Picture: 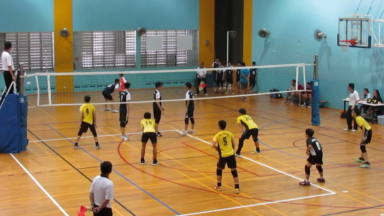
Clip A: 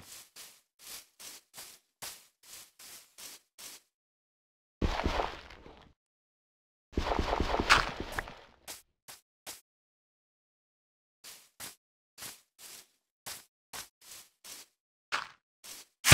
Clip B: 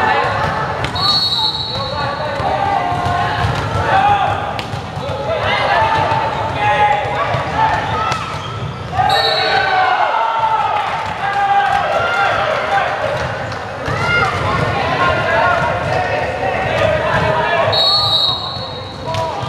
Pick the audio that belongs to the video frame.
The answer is B